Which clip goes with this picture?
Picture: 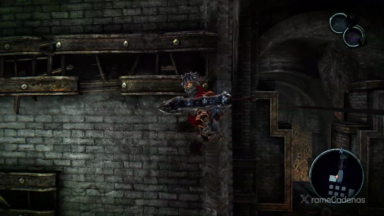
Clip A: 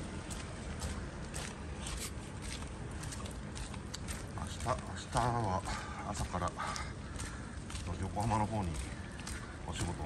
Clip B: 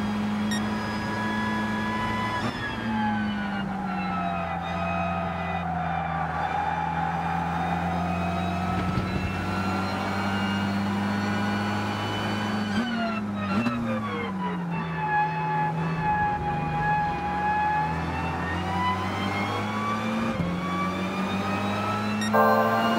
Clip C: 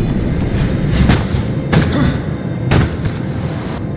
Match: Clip C